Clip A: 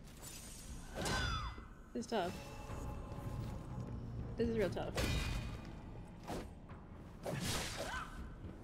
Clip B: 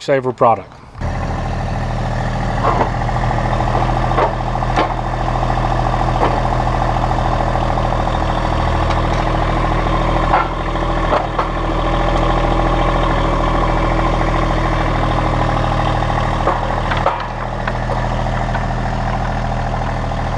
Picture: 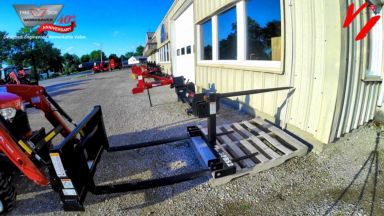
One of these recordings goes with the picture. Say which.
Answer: B